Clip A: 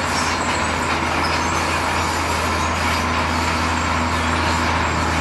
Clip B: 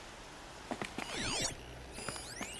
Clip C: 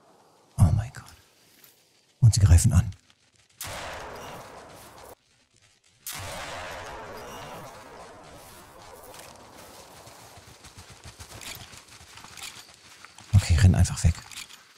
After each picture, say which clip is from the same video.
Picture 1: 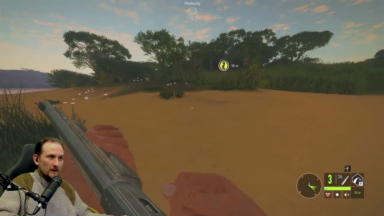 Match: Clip C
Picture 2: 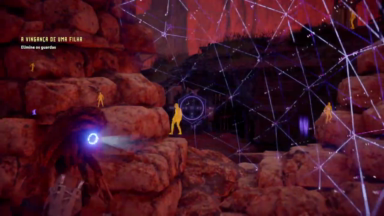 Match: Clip B